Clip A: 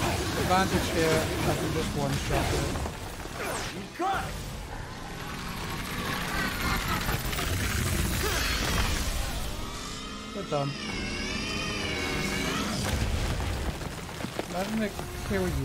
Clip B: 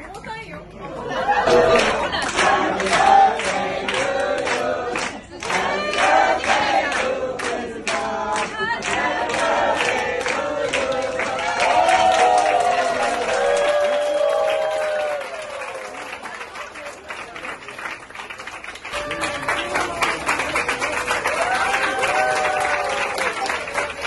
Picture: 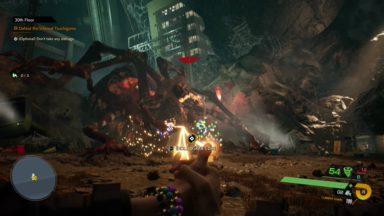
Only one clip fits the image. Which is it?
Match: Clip A